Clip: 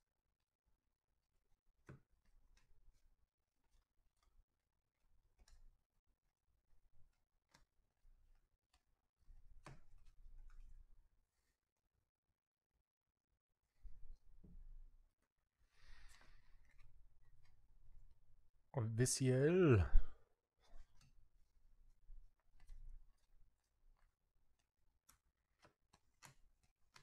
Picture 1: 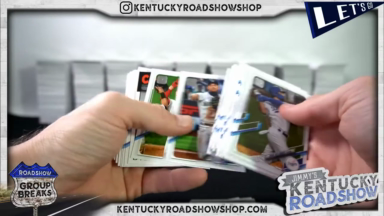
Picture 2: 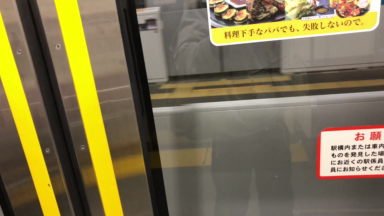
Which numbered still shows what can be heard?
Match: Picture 1